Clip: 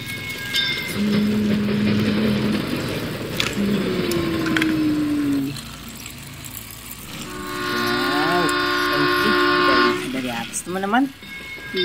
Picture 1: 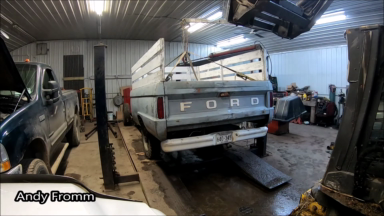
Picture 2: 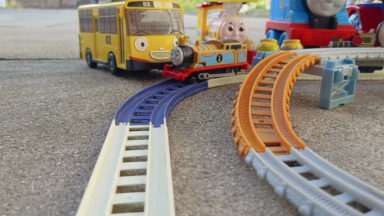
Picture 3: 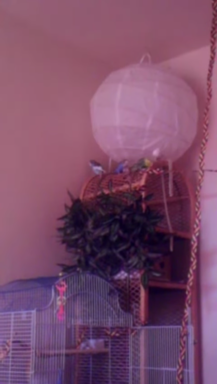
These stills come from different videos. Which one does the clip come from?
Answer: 2